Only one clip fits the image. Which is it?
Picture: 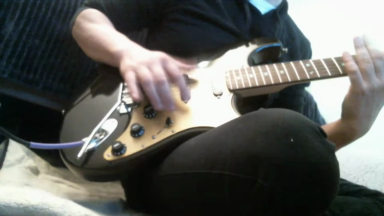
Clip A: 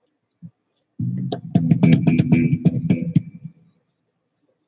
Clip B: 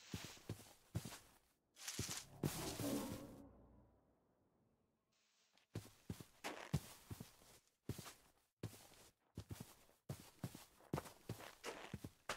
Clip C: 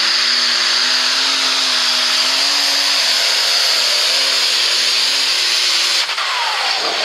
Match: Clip A